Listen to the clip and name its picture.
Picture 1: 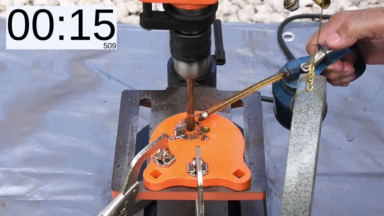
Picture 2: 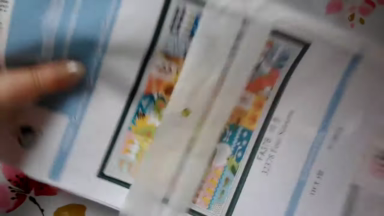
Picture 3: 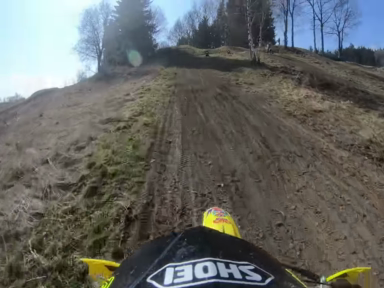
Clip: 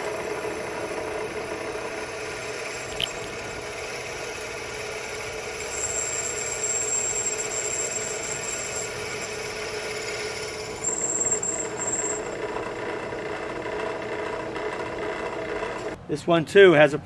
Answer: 1